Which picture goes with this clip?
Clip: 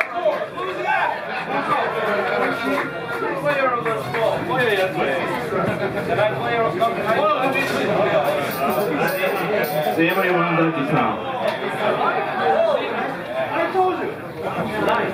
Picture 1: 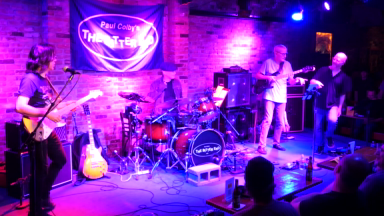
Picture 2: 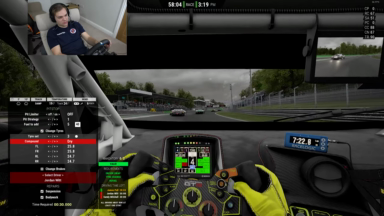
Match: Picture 1